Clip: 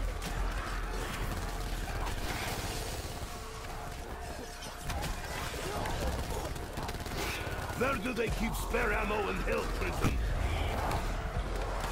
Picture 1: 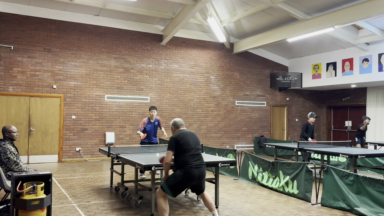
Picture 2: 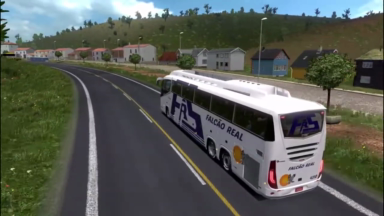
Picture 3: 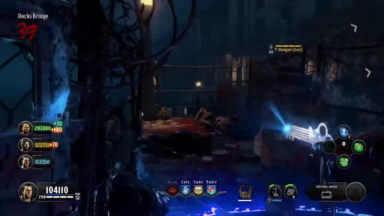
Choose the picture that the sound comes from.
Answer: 3